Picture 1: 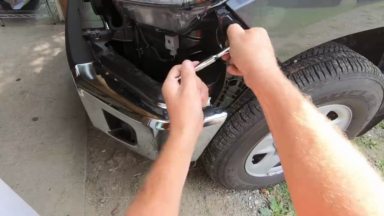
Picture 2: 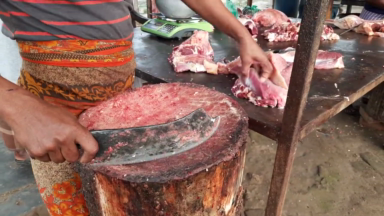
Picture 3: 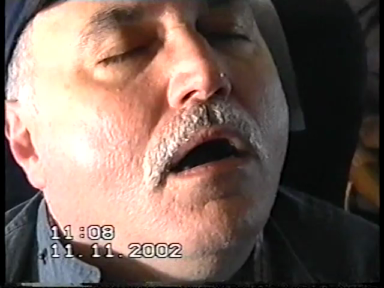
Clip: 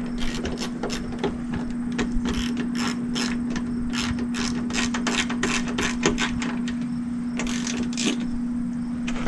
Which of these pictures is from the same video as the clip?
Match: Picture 1